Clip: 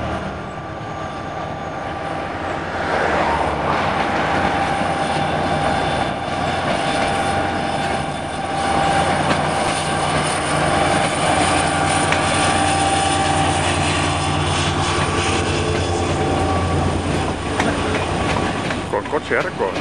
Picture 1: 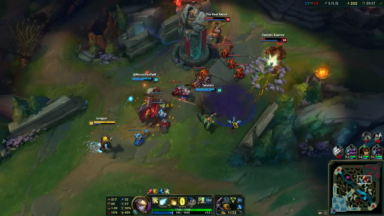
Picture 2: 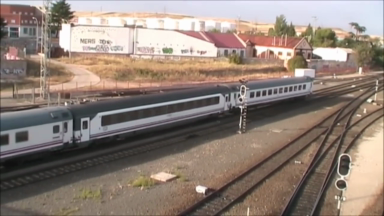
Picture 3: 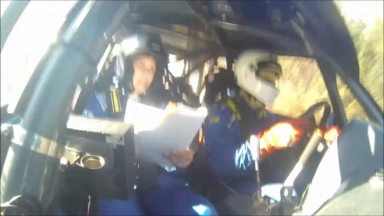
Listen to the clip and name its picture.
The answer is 2